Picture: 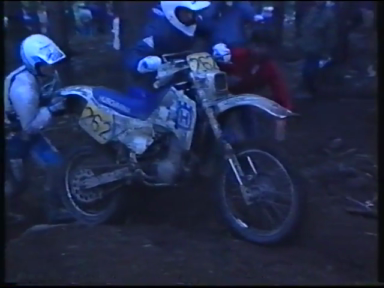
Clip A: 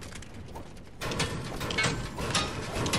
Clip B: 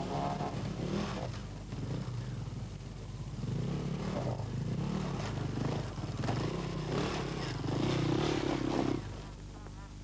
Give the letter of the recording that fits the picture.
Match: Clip B